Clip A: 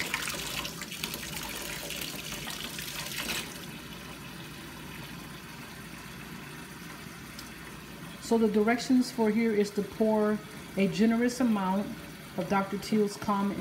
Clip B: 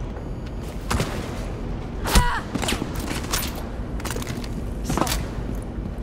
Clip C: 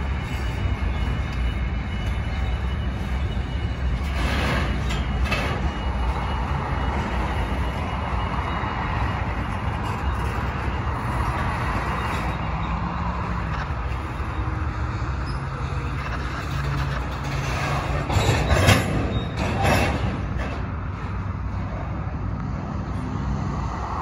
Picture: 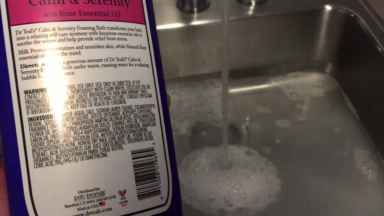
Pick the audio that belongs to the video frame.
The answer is A